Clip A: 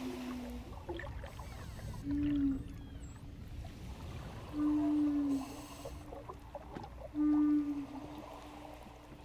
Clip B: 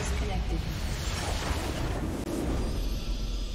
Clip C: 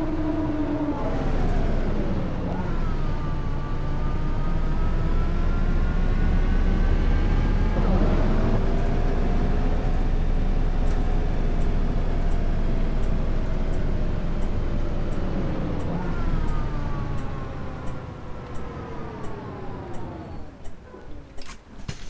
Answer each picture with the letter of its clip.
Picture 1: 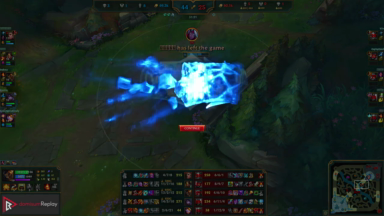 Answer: B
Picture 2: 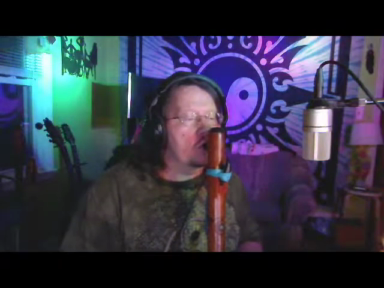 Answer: A